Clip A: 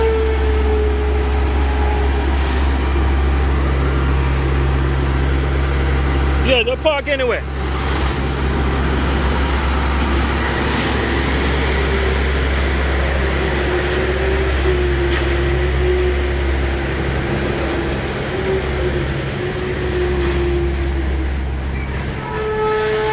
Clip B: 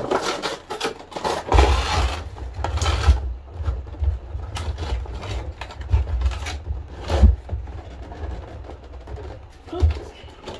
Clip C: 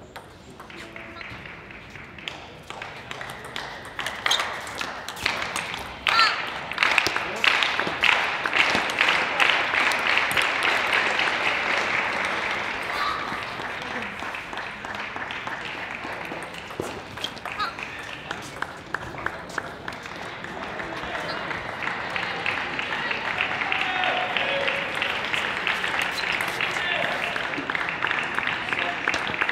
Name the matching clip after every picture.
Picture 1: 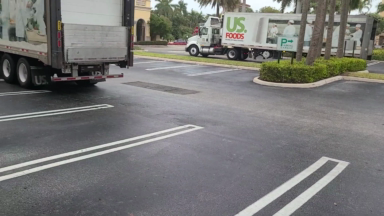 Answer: A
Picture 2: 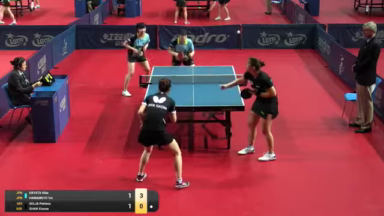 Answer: C